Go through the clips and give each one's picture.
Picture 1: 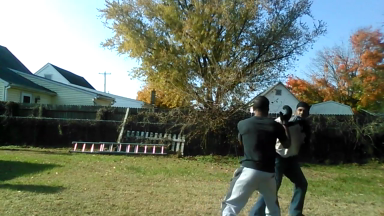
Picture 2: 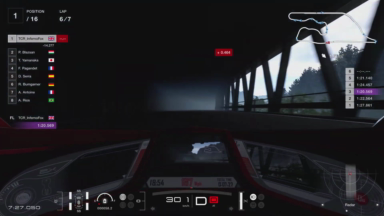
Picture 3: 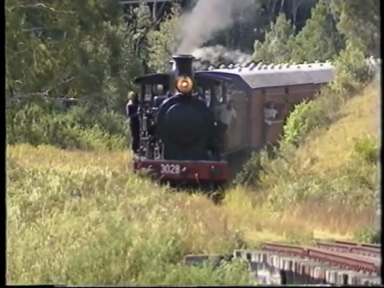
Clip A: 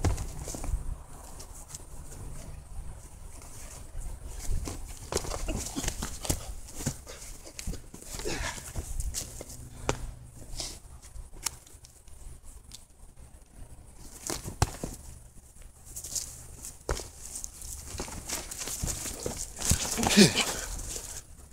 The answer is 1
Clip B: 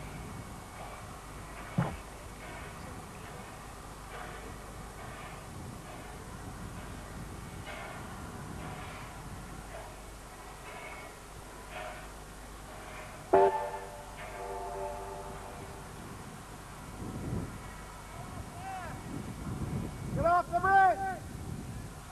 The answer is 3